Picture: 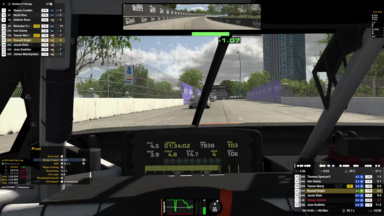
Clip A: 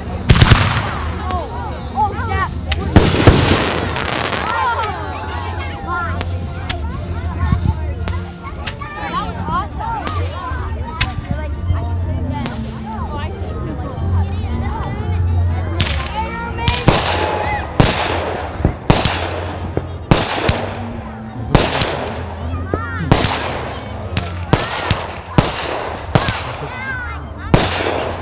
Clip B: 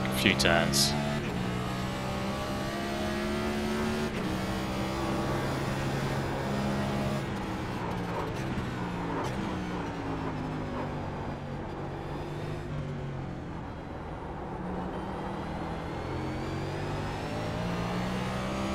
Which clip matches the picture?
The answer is B